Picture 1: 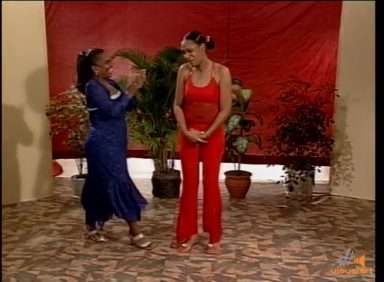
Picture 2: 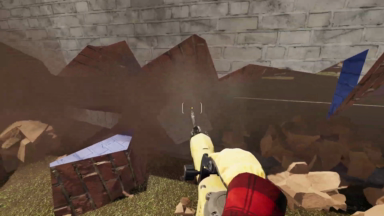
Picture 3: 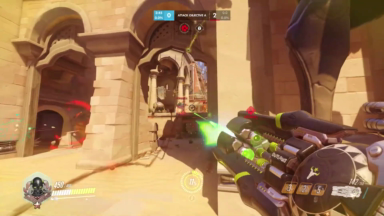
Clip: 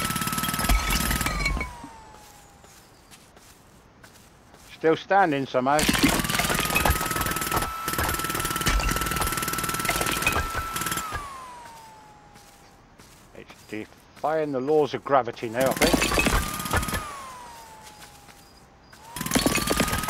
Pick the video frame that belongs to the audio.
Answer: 2